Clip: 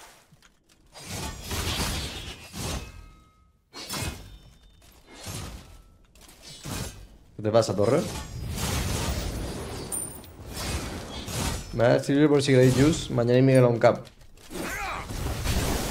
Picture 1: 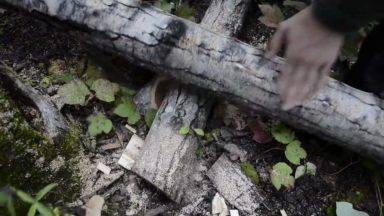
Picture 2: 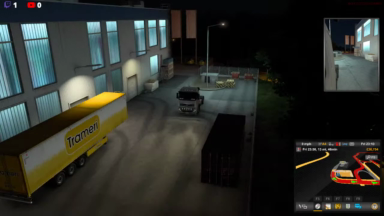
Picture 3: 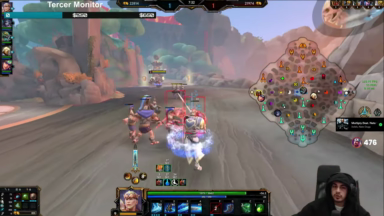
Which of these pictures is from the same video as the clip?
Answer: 3